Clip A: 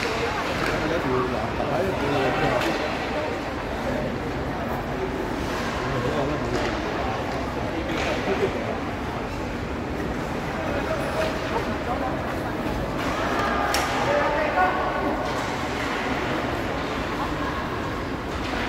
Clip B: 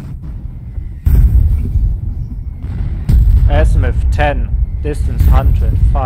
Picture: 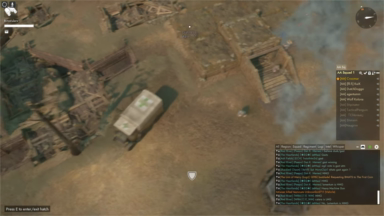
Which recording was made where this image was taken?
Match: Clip B